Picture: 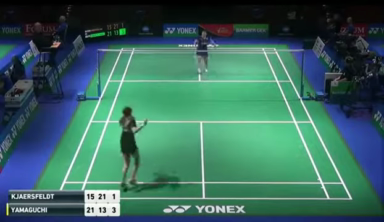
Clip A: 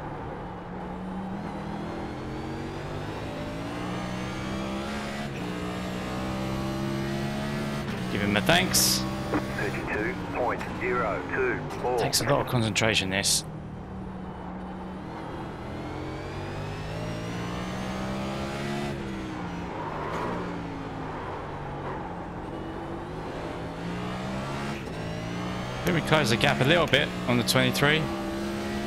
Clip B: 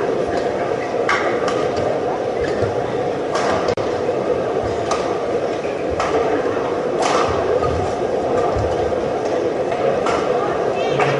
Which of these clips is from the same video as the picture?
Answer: B